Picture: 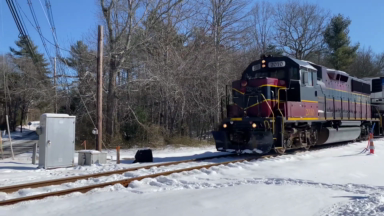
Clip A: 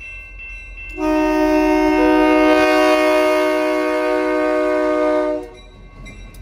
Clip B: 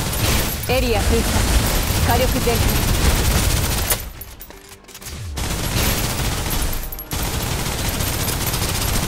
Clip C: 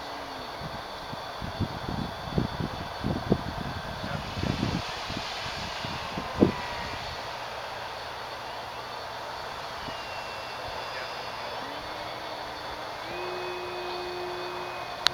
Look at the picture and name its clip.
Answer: A